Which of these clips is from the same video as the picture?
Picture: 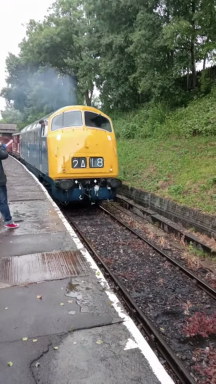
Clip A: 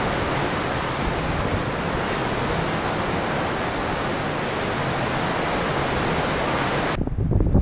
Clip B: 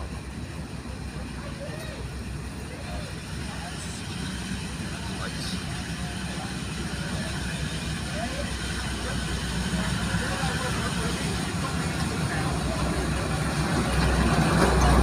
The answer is B